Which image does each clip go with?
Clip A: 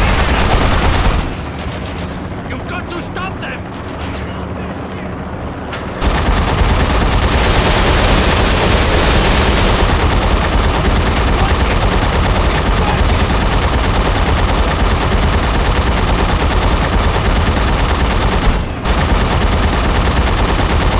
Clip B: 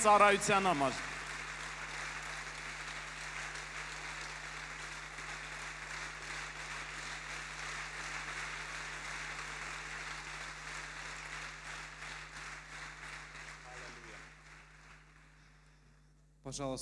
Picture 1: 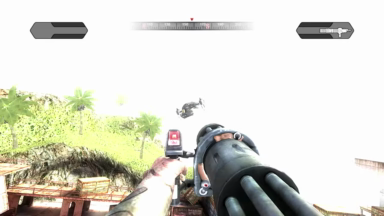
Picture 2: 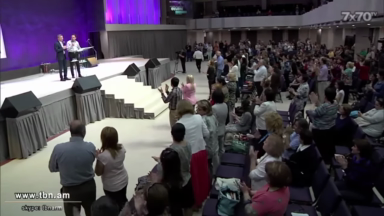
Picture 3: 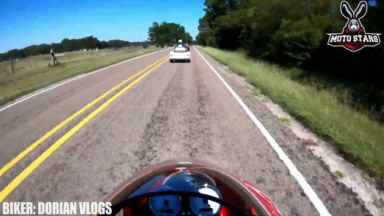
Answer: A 1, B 2